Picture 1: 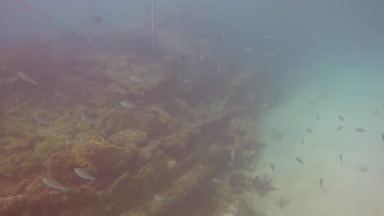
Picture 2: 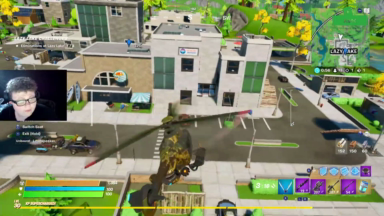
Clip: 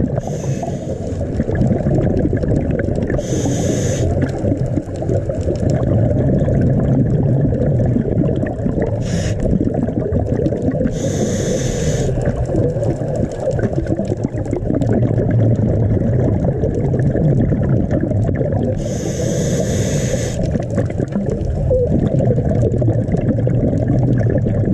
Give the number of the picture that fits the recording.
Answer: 1